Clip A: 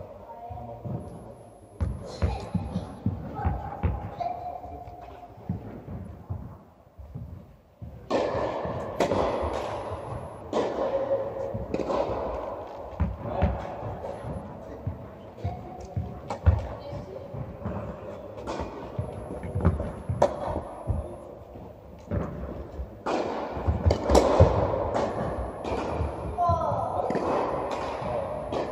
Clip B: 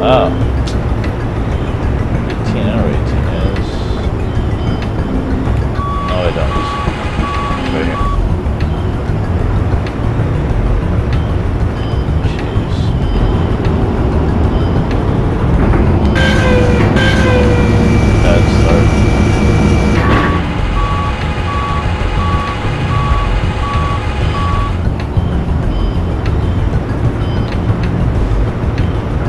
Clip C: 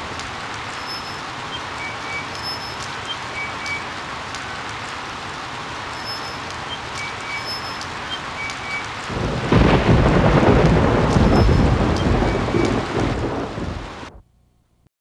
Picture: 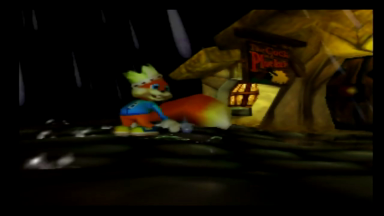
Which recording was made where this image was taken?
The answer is C